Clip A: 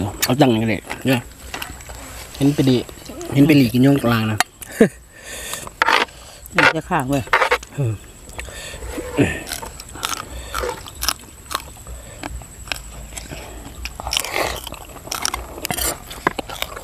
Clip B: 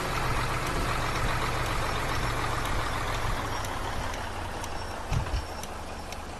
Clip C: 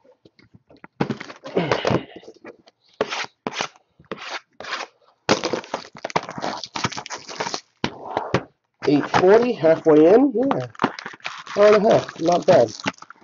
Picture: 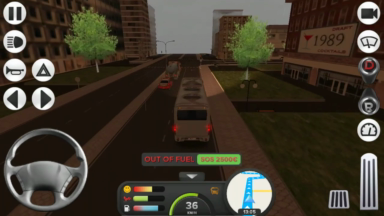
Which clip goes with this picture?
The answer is B